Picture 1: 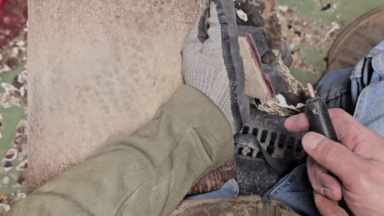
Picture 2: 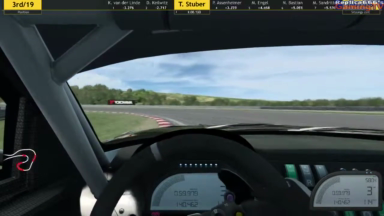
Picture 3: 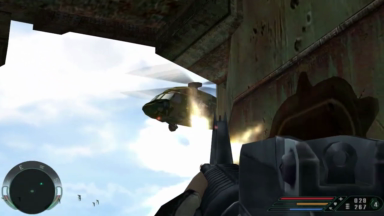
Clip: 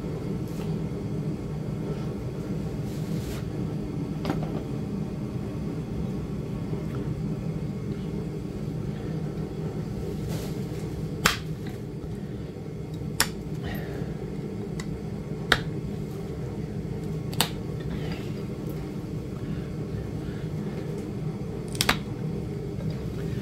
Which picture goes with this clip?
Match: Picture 1